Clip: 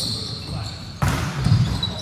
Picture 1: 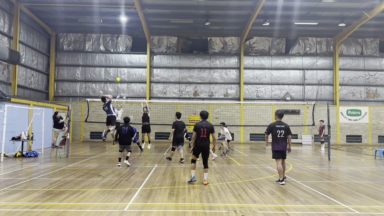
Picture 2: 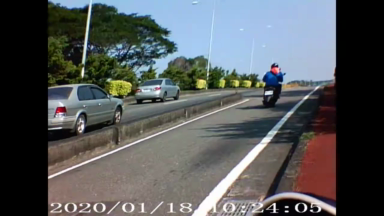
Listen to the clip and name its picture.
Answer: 1